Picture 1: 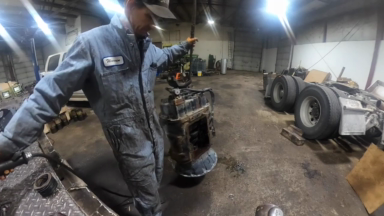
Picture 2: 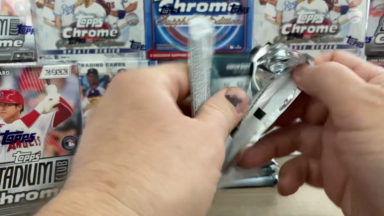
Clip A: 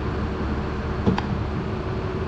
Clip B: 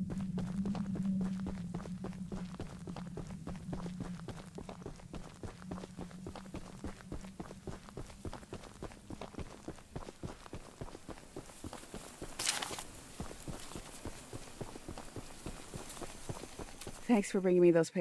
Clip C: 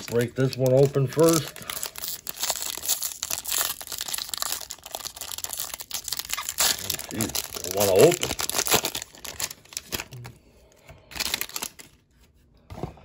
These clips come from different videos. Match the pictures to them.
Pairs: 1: A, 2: C